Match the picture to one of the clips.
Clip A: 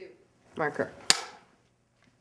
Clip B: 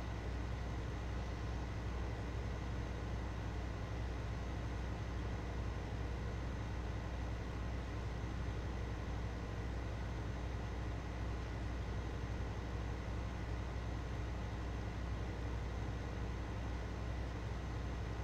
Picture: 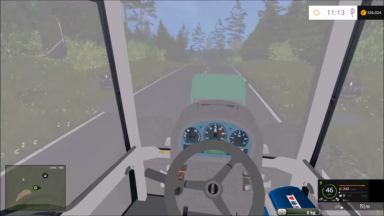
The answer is B